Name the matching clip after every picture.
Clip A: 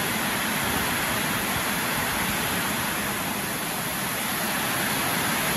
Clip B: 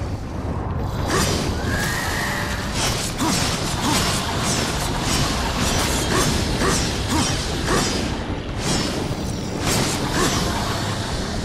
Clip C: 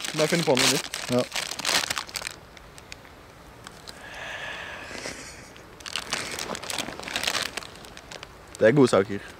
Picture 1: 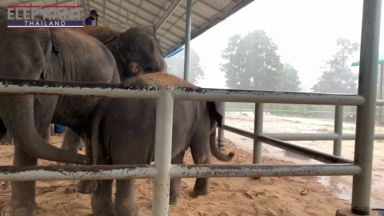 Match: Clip A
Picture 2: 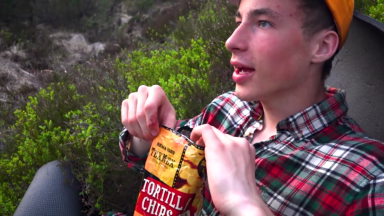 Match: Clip C